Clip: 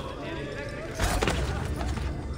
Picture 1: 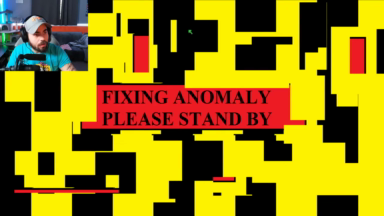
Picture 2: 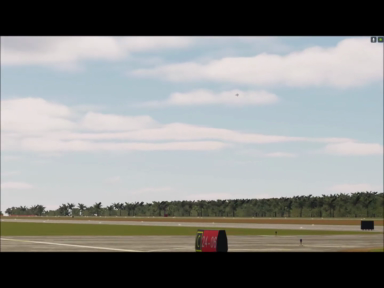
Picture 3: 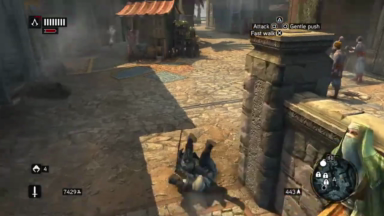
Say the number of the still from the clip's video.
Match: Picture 3